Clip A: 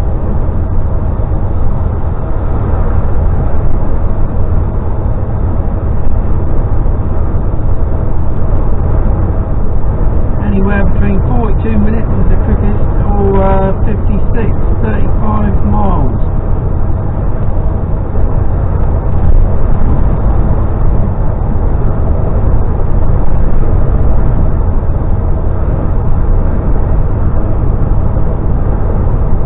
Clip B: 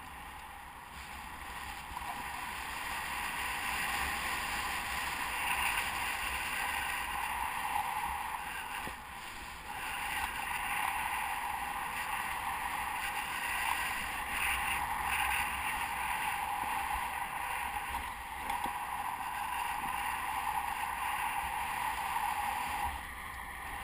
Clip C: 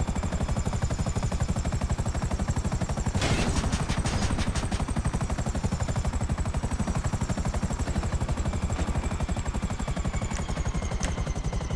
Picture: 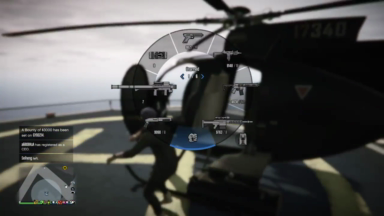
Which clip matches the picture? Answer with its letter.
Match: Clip C